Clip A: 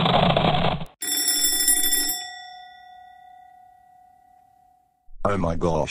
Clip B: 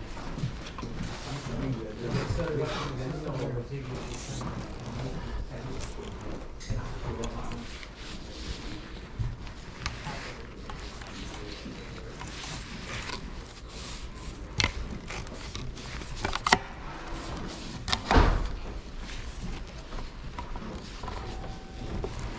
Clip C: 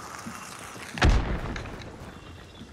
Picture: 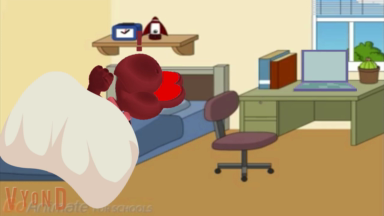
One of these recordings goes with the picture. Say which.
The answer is A